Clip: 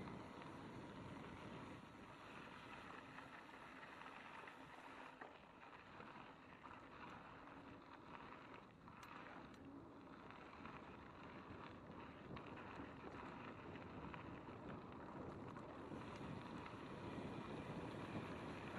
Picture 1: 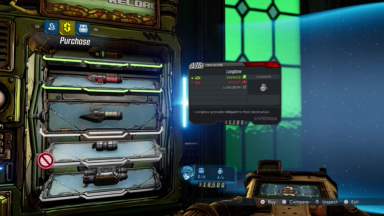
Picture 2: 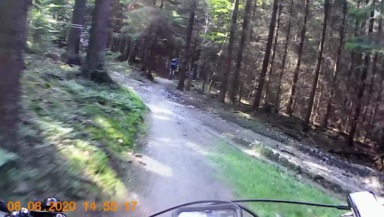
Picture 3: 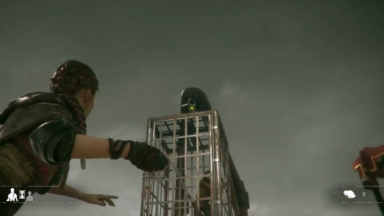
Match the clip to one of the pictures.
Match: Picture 2